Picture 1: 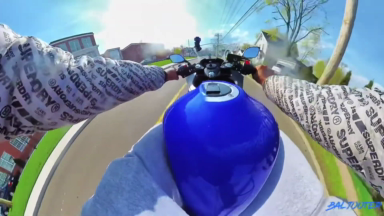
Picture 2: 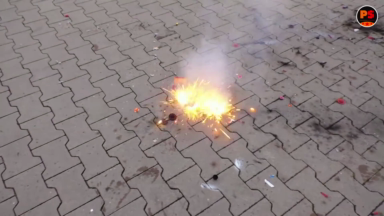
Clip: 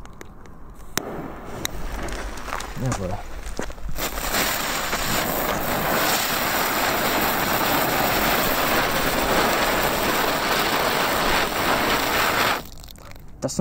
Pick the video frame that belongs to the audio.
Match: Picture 2